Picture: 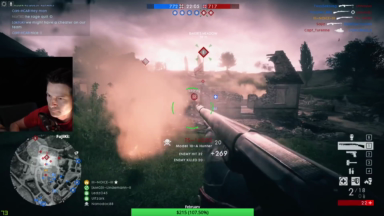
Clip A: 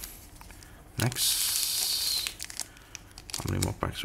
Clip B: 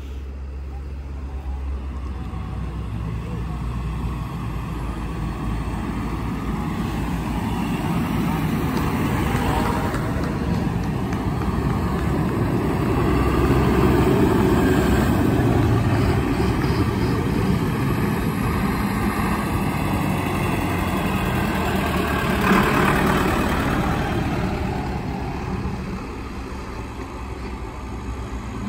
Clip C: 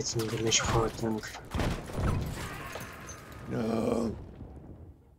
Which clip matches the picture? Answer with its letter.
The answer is C